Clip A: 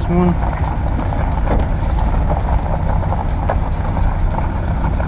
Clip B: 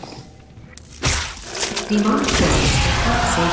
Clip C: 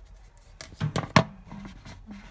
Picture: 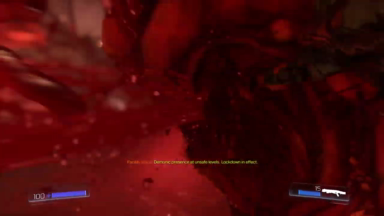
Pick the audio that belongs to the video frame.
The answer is B